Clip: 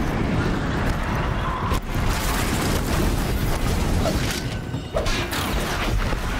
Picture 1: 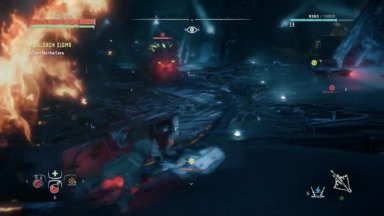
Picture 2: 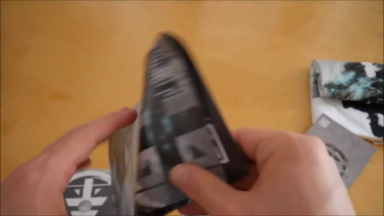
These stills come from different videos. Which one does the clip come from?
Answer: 1